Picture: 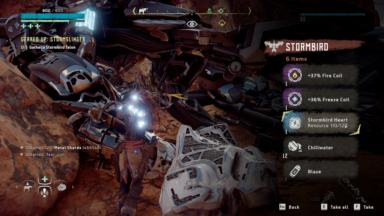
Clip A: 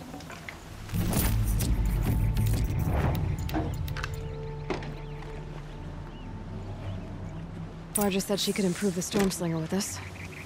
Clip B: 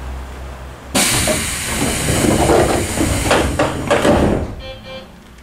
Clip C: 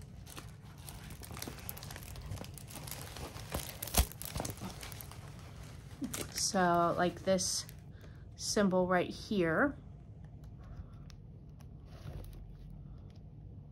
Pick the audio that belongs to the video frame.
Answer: A